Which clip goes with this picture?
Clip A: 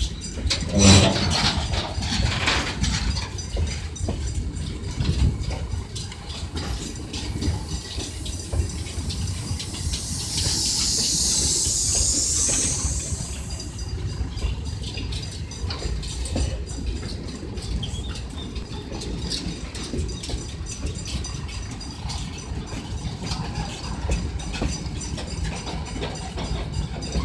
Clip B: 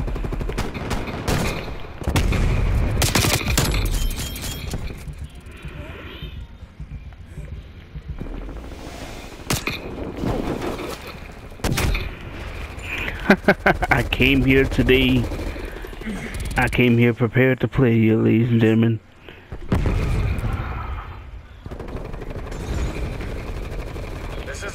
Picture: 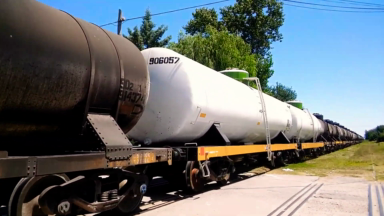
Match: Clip A